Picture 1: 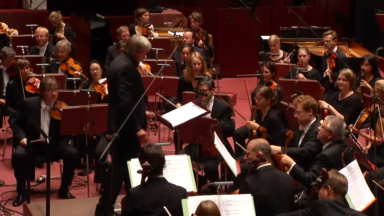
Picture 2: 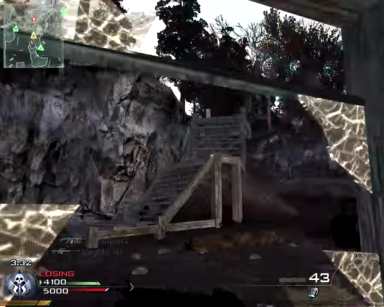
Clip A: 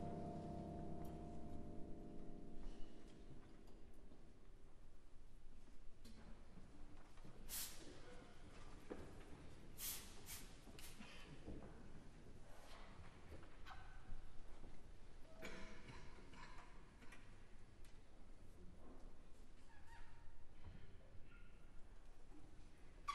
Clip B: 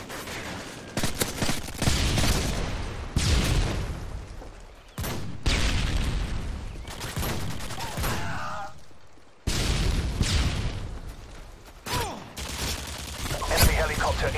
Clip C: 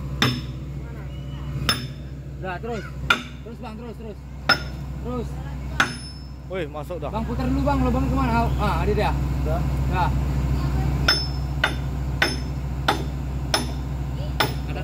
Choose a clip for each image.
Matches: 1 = A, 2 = B